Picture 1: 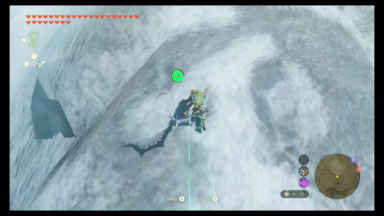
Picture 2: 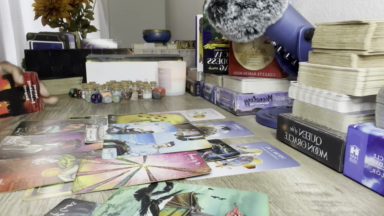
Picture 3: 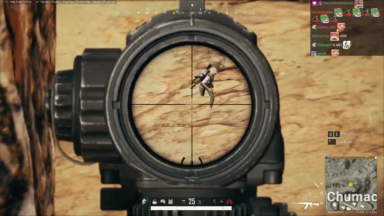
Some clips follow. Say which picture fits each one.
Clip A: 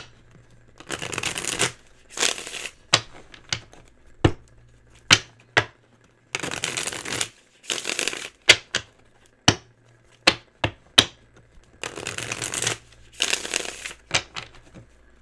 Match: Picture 2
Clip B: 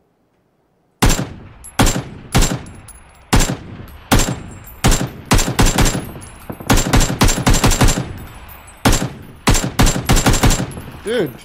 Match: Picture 3